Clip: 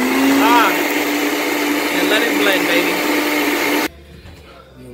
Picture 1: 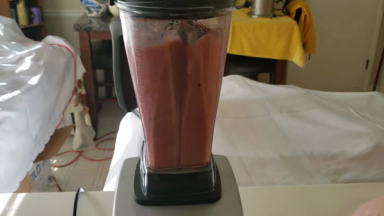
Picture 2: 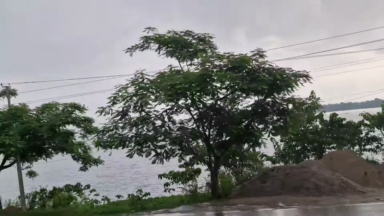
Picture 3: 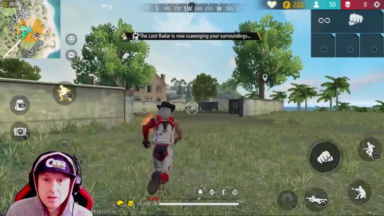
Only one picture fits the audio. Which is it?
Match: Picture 1